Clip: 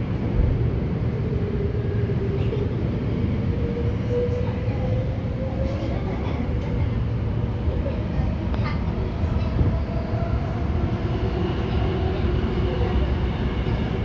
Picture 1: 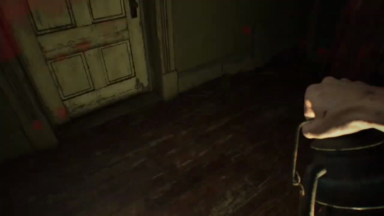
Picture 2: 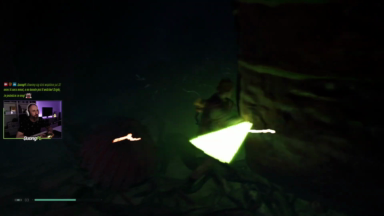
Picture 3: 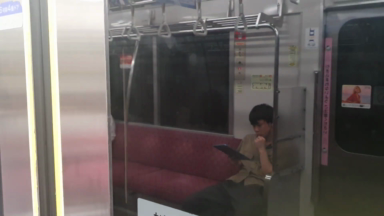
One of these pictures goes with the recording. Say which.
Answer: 3